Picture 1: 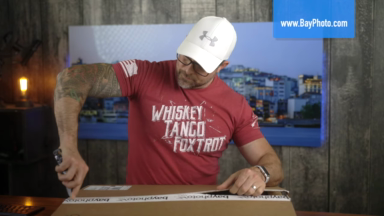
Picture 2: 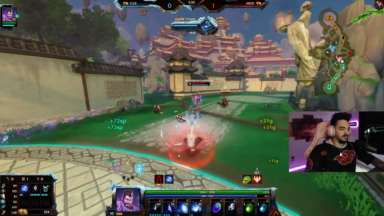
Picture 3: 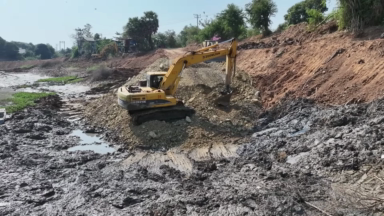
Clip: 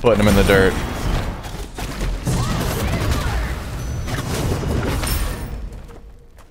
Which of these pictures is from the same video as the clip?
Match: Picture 2